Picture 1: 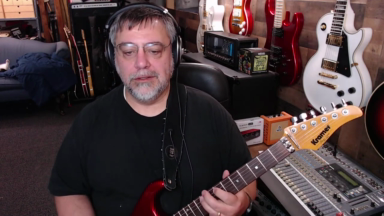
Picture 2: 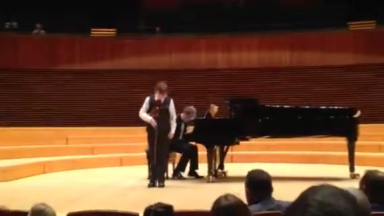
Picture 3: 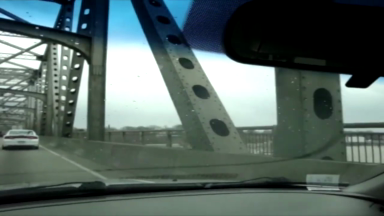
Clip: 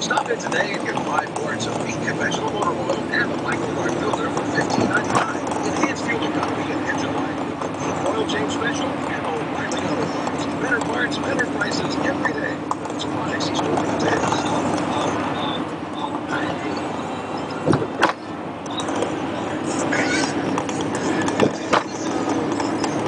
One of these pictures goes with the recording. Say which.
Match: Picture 3